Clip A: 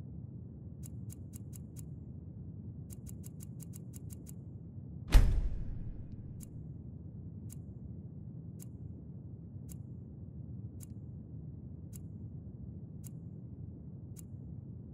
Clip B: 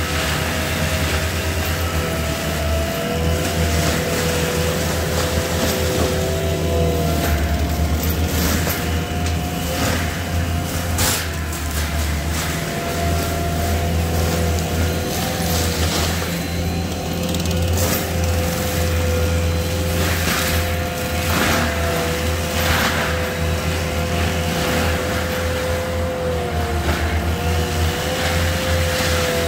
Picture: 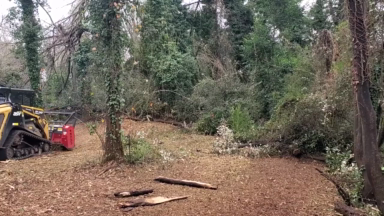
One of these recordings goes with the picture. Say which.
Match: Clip B